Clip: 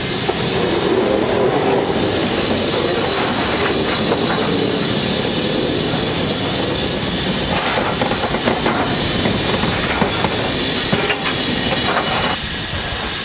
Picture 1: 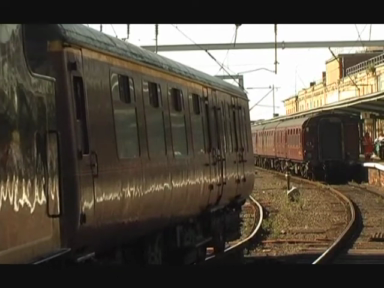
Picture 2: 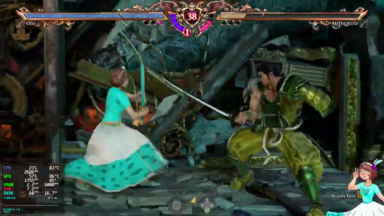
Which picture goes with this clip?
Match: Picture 1